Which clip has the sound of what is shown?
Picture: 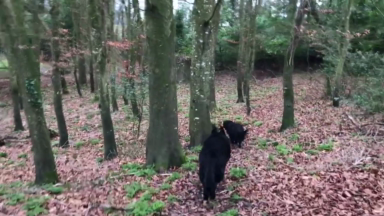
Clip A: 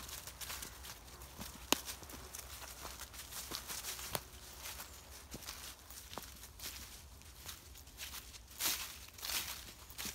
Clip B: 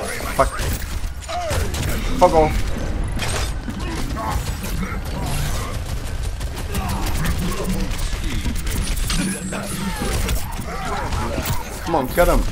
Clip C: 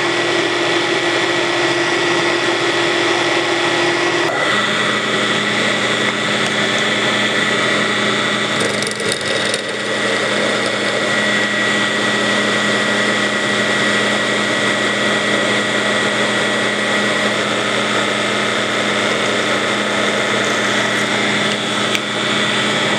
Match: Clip A